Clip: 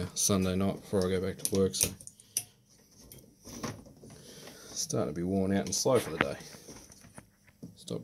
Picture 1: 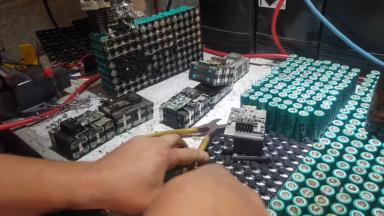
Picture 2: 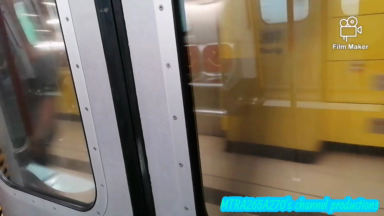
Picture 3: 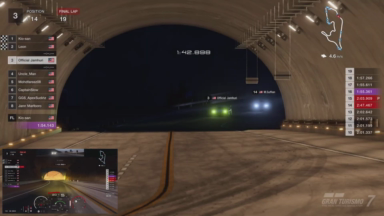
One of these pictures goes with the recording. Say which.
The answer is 1